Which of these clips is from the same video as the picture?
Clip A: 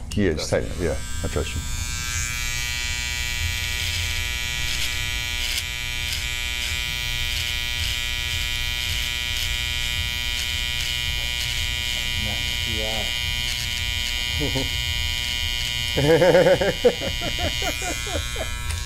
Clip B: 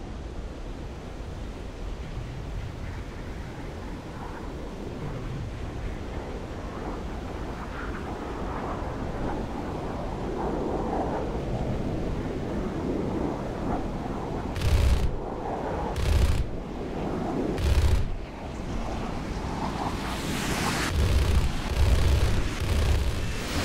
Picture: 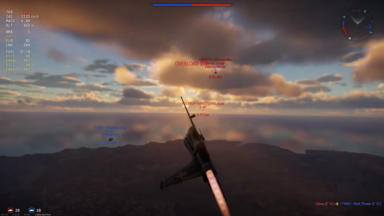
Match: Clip B